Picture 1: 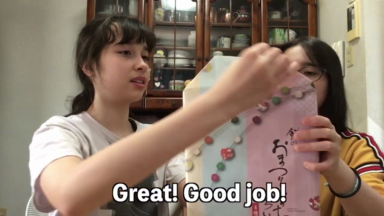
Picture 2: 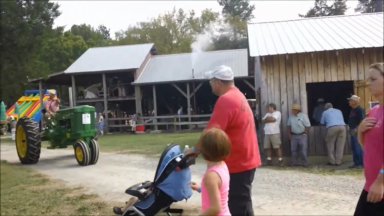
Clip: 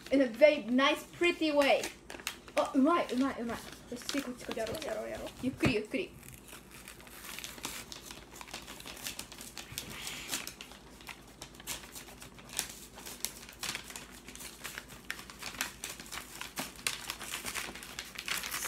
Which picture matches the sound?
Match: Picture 1